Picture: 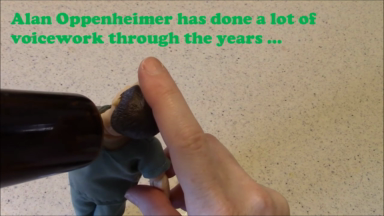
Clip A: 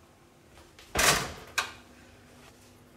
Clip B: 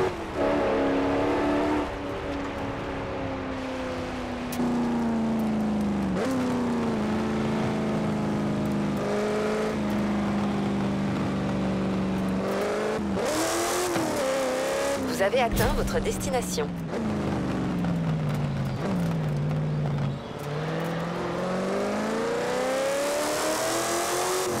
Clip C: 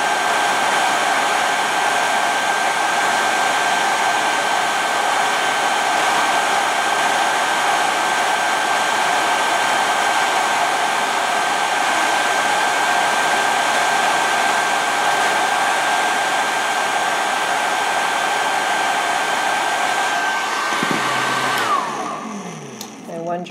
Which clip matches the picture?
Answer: C